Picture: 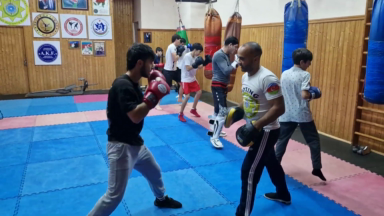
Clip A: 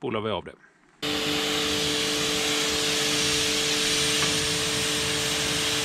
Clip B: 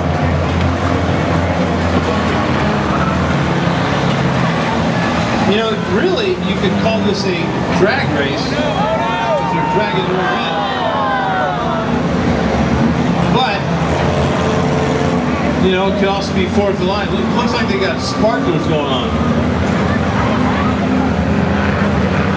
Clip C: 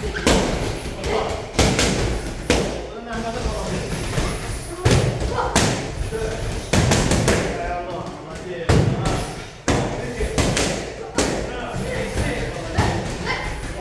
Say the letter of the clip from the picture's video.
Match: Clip C